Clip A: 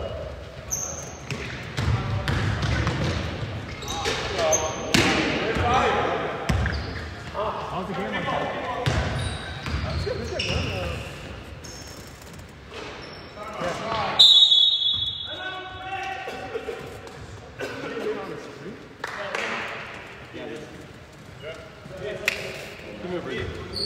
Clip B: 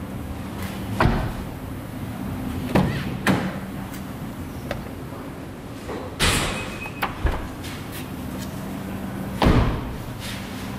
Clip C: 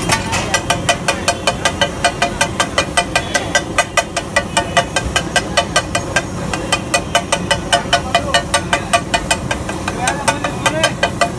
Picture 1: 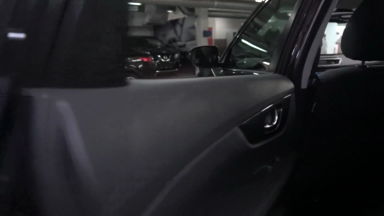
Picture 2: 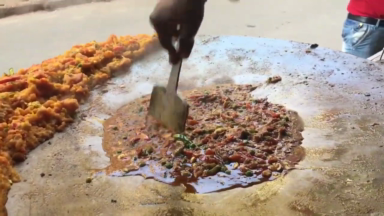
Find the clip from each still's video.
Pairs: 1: B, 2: C